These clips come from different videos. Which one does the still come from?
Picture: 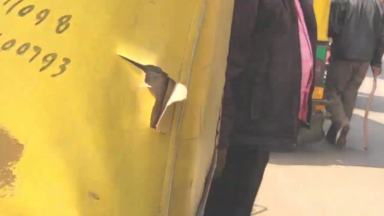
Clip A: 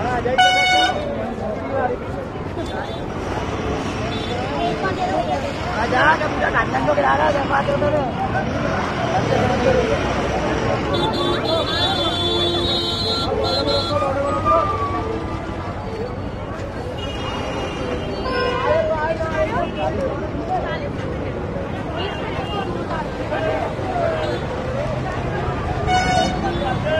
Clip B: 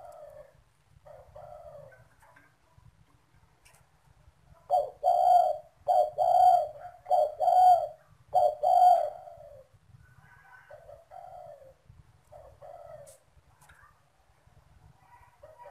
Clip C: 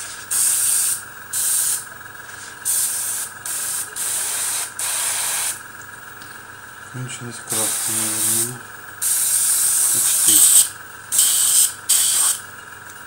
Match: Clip A